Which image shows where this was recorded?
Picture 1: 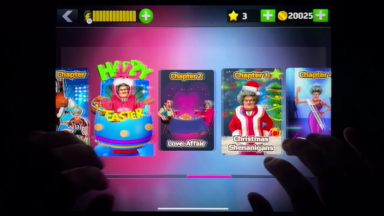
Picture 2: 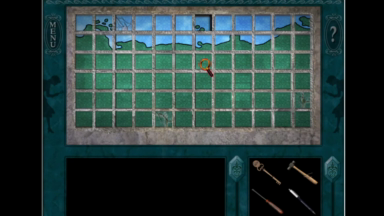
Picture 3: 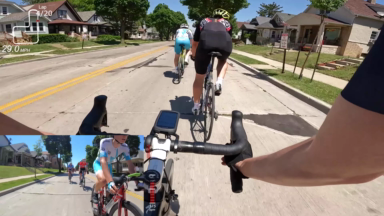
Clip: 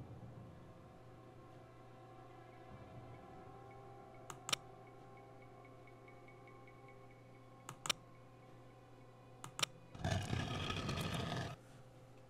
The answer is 2